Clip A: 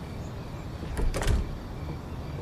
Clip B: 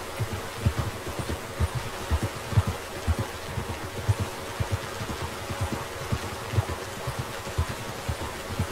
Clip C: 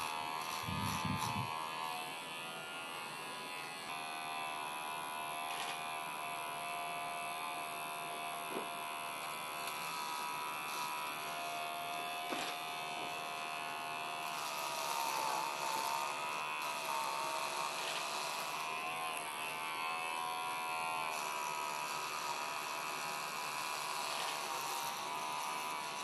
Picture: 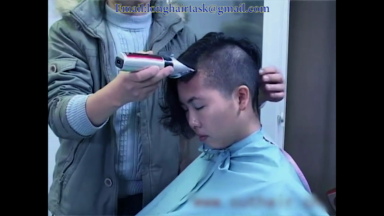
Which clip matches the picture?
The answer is C